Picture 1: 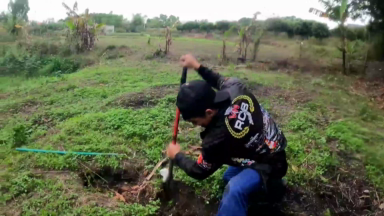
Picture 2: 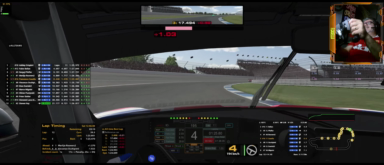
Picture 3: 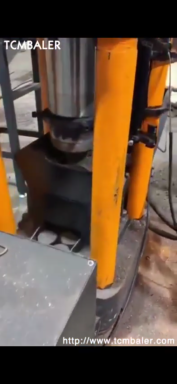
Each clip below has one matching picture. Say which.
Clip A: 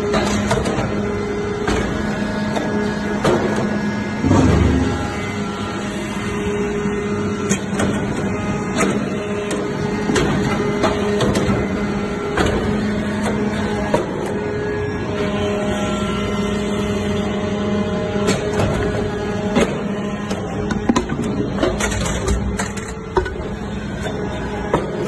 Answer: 3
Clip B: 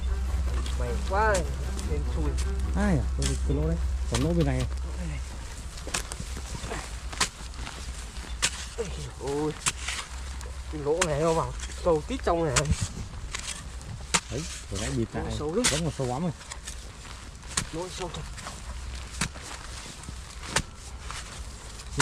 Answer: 1